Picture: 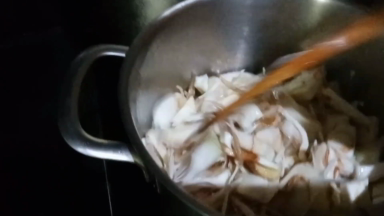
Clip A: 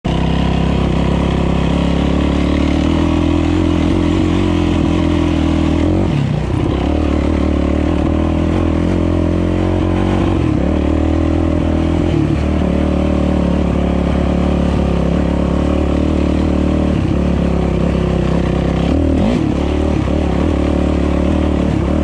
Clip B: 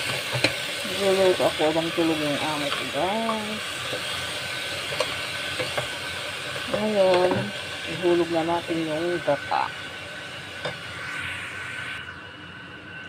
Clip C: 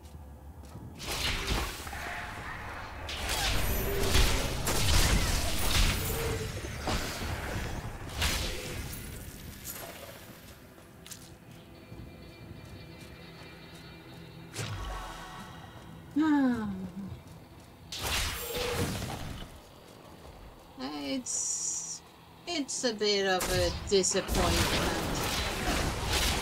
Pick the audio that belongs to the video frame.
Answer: B